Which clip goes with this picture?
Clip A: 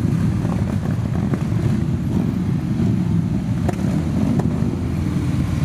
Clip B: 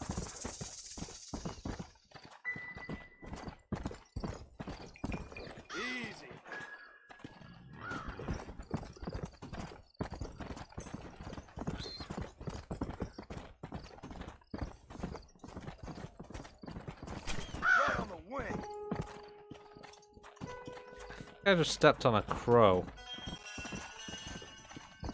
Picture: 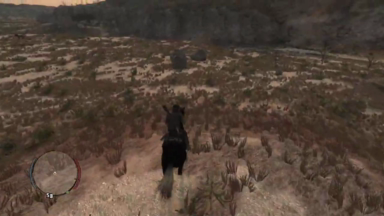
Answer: B